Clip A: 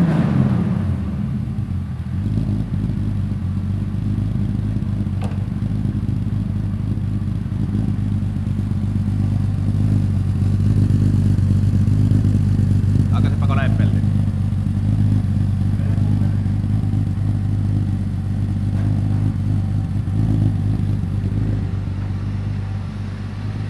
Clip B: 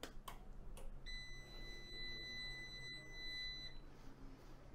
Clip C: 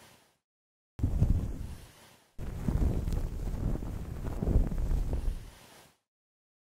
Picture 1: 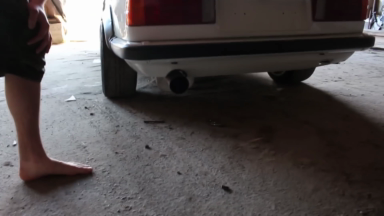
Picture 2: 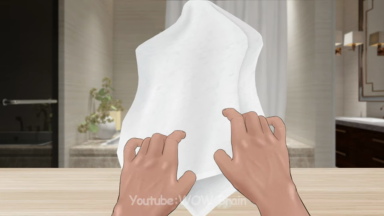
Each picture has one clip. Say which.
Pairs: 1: A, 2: C